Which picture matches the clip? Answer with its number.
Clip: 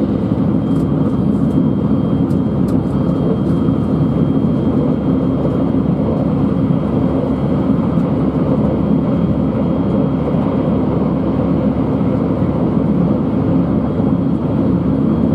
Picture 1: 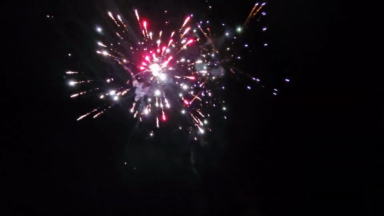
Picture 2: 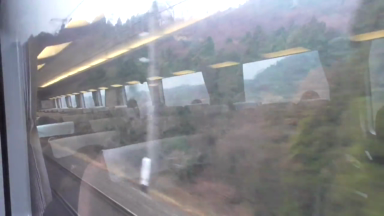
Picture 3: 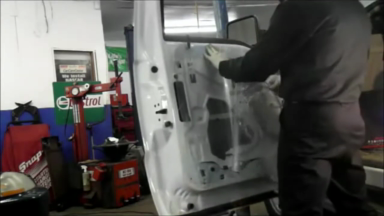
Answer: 2